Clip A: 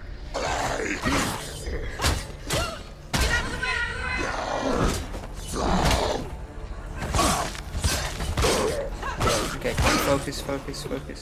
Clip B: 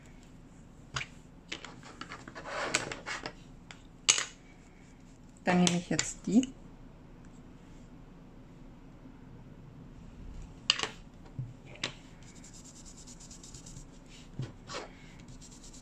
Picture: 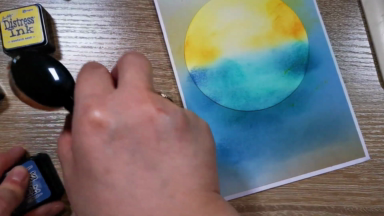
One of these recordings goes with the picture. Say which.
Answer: B